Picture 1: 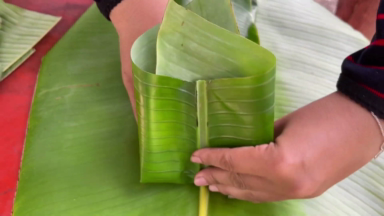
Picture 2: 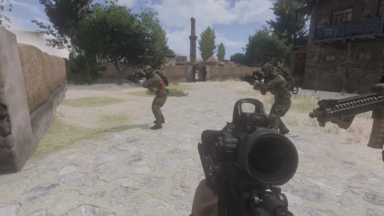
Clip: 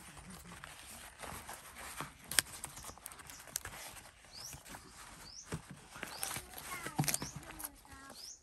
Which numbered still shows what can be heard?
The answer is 1